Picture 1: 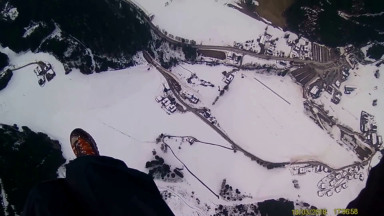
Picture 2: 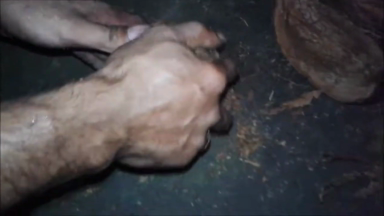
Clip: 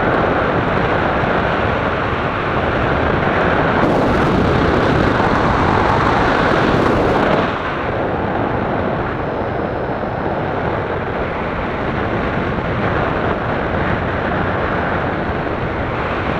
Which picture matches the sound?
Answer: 1